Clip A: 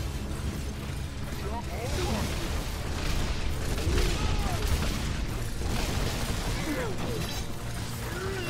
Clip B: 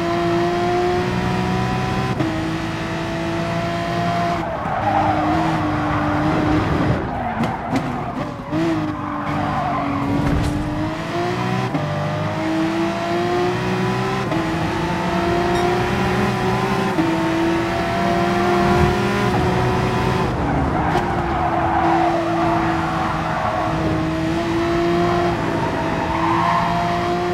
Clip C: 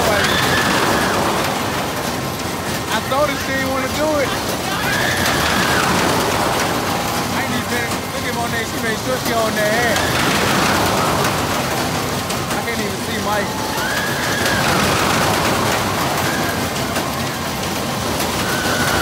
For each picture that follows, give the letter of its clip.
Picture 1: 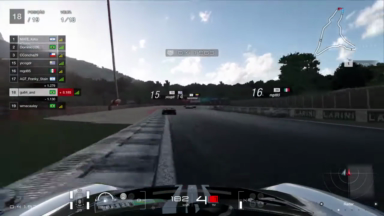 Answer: B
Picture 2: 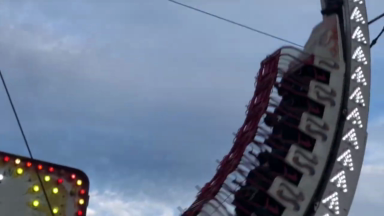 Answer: C